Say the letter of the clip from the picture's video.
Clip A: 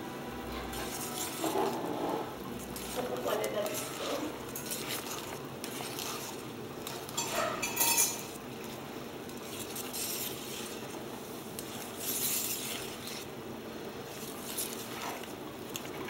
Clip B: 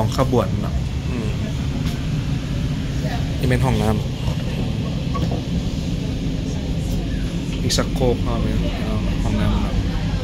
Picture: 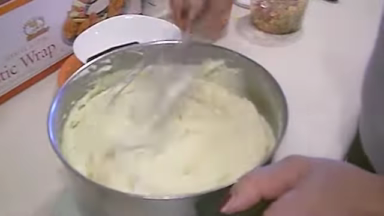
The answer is A